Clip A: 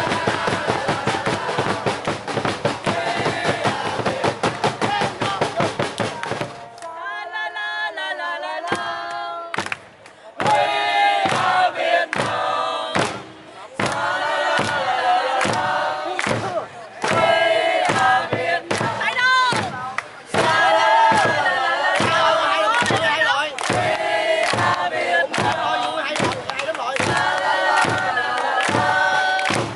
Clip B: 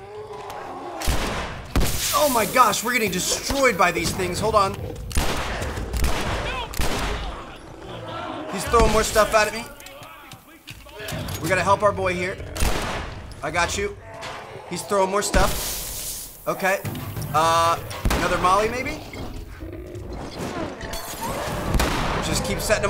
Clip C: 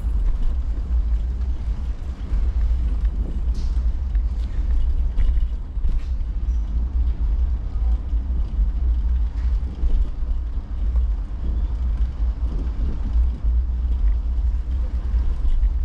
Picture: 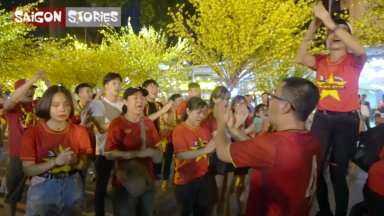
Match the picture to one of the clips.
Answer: A